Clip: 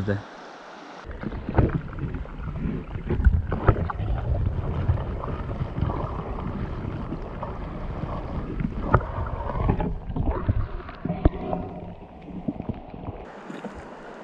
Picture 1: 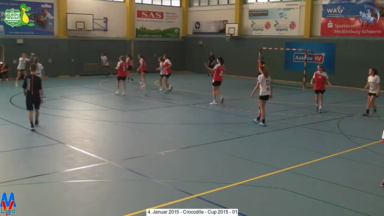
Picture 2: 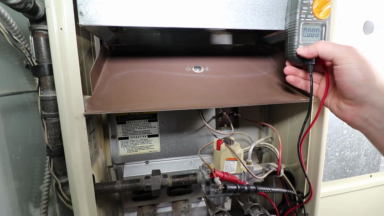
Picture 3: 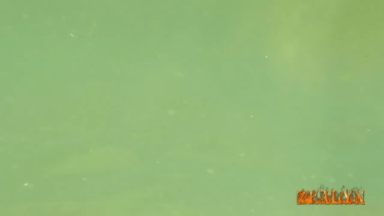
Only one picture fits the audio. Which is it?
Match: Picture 3